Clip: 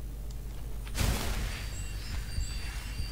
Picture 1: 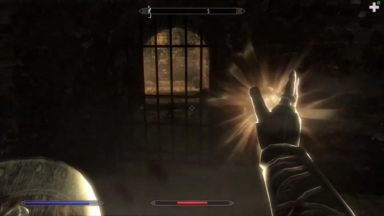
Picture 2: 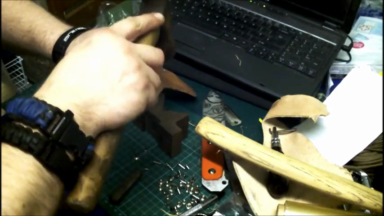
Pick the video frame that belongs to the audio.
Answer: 1